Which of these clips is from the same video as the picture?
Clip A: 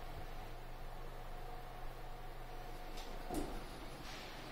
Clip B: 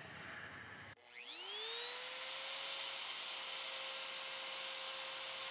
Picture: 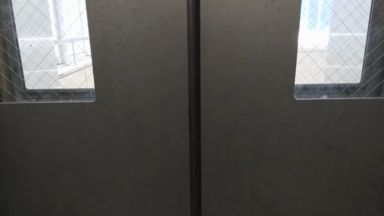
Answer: A